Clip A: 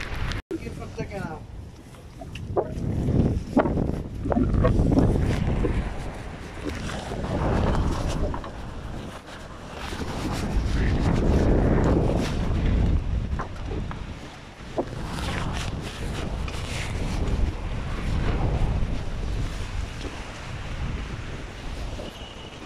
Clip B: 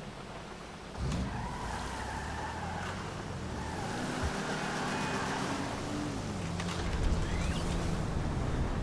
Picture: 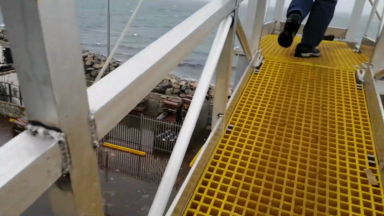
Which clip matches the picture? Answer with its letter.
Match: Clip A